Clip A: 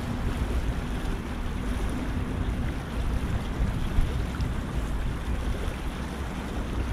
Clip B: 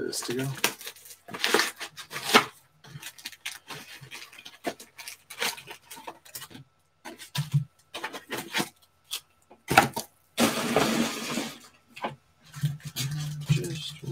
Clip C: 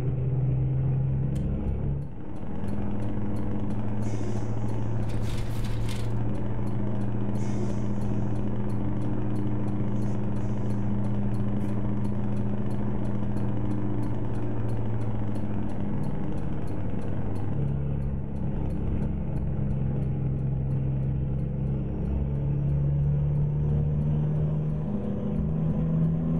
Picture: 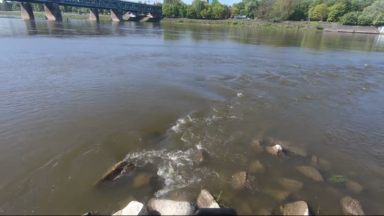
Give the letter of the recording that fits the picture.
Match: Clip A